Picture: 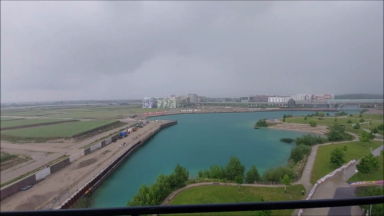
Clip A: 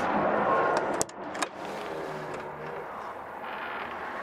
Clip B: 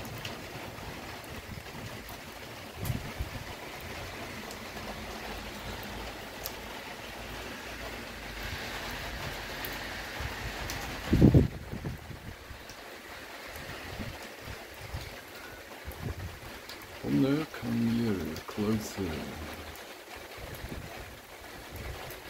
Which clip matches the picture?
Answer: B